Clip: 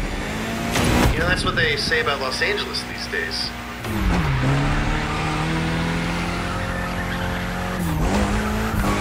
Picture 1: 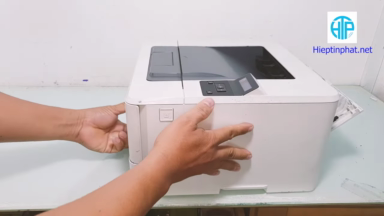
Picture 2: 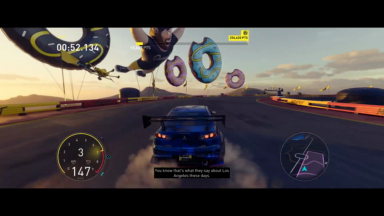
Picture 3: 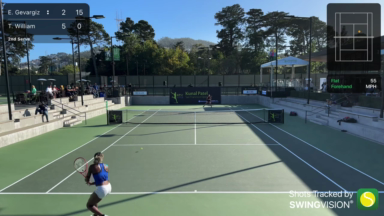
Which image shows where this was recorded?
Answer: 2